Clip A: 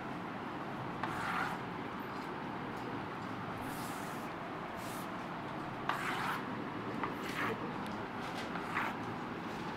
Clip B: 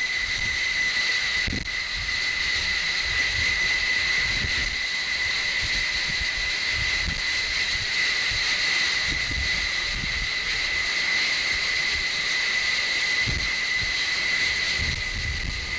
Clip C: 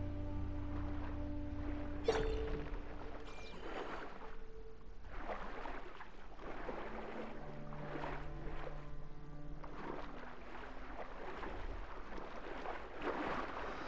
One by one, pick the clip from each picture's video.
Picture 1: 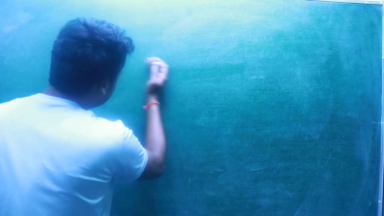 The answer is A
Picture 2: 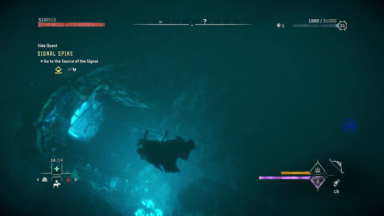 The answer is C